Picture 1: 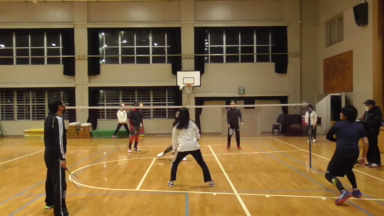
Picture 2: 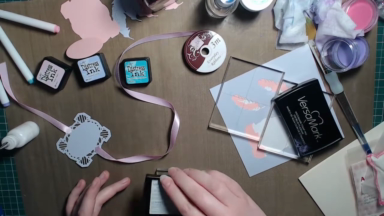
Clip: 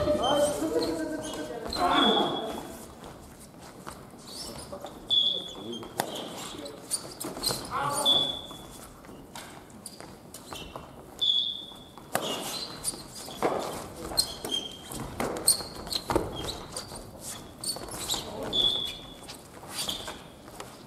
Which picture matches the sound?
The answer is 1